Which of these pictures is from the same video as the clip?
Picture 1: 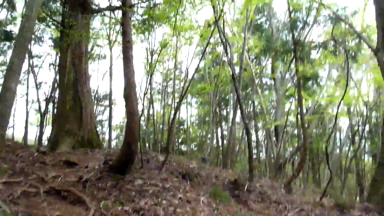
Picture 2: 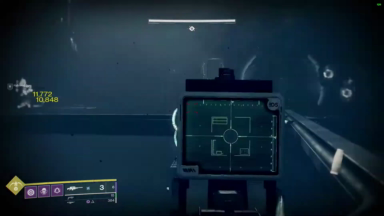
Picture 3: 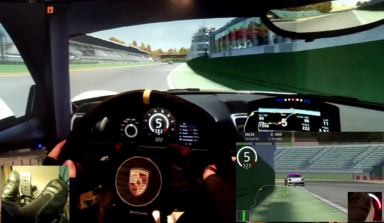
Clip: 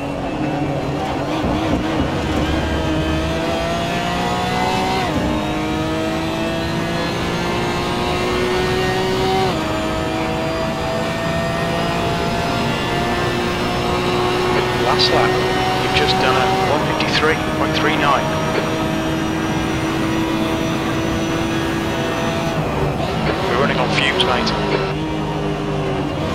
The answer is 3